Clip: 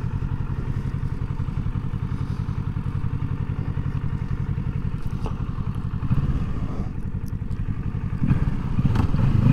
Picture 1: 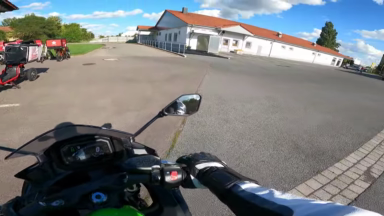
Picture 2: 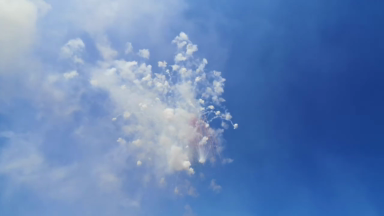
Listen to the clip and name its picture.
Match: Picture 1